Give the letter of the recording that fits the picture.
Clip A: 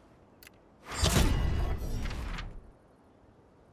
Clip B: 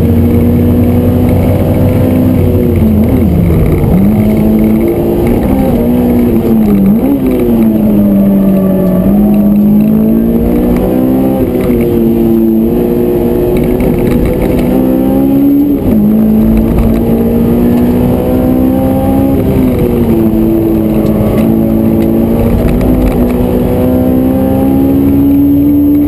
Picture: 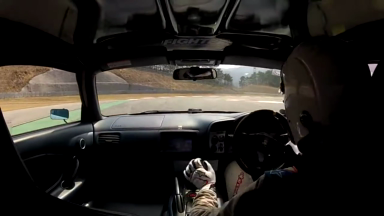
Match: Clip B